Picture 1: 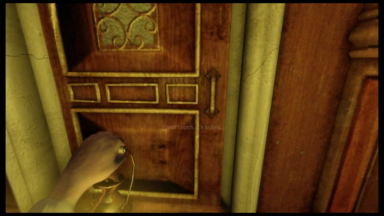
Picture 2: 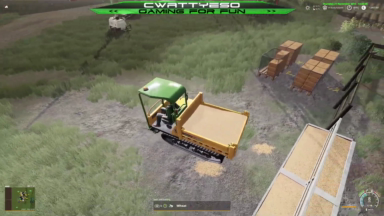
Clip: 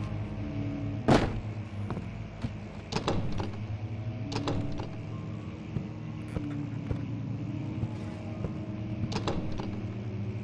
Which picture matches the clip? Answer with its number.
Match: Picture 1